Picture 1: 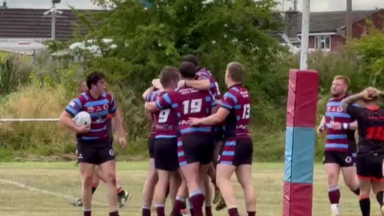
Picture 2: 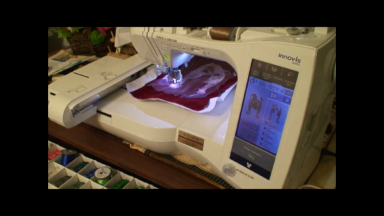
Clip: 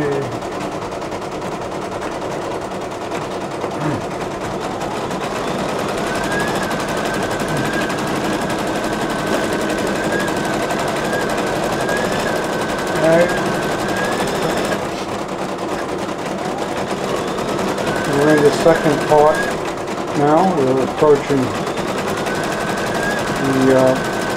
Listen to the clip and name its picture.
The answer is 2